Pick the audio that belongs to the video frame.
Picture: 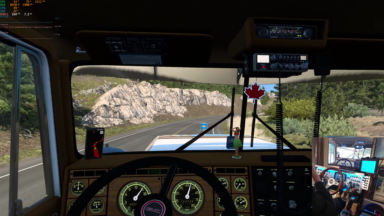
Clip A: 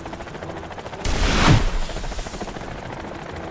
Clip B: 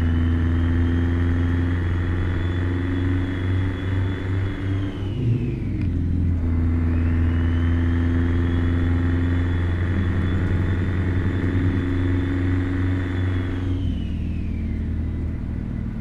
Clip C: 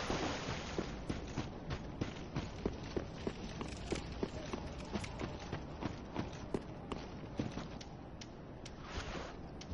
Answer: B